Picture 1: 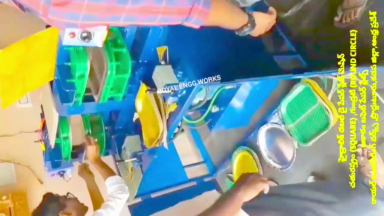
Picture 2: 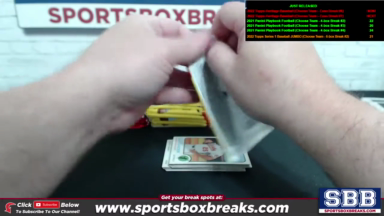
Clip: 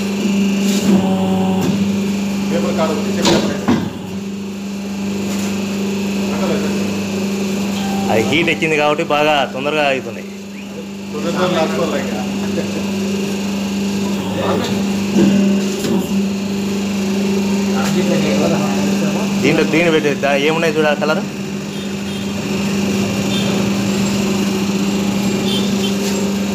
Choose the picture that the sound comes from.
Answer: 1